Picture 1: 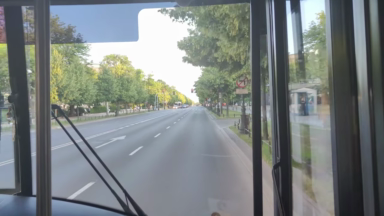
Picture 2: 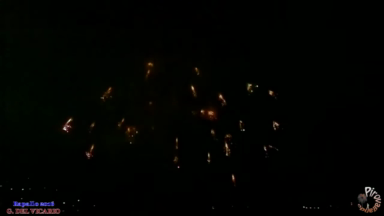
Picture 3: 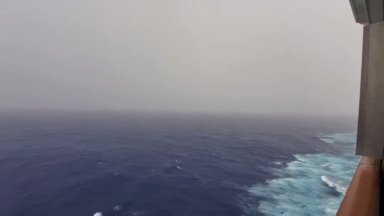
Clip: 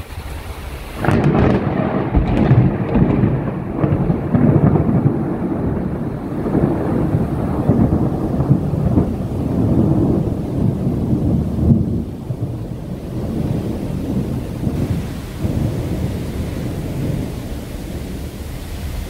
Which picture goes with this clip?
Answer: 3